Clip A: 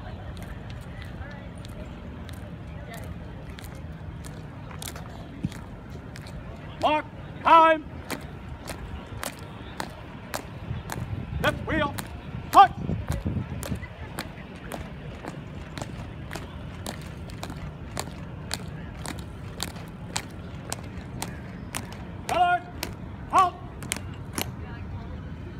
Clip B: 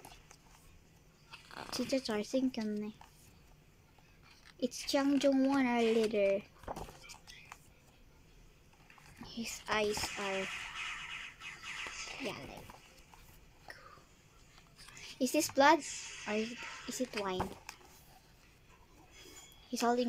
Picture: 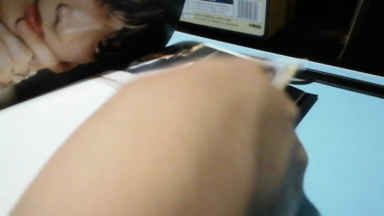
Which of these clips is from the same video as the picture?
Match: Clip B